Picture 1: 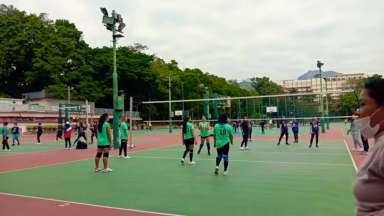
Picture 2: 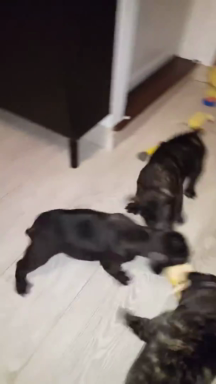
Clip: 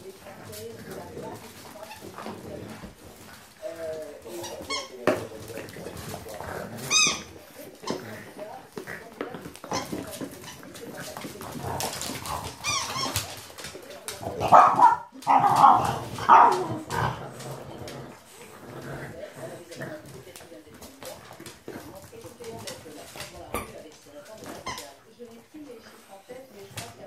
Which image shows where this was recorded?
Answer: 2